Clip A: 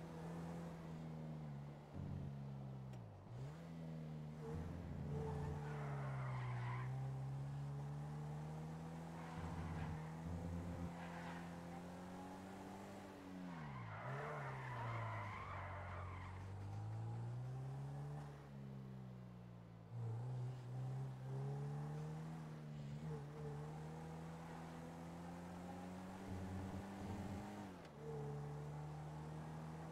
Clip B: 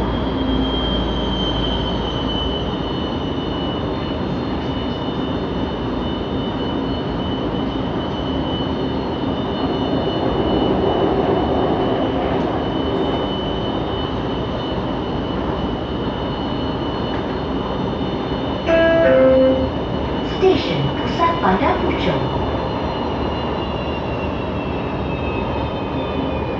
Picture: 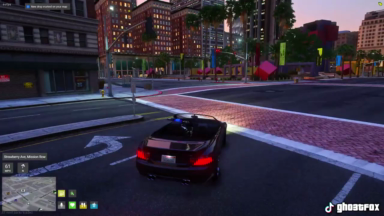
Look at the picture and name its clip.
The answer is A